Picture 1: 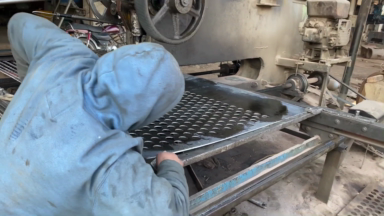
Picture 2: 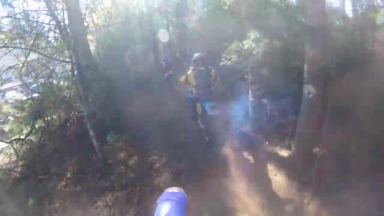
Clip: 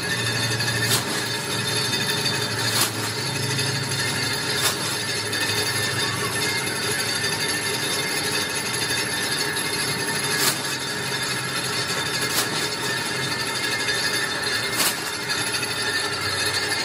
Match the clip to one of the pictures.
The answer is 1